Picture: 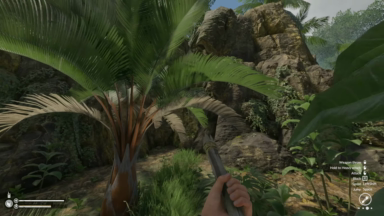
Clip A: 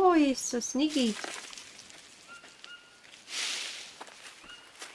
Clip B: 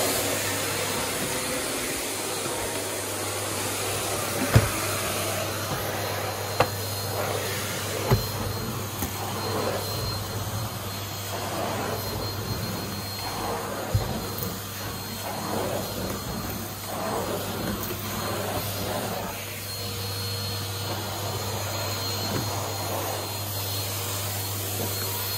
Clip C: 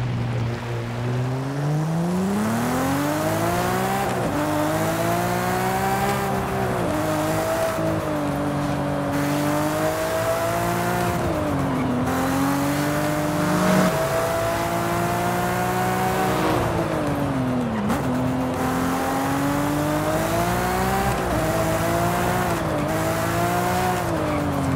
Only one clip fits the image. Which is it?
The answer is A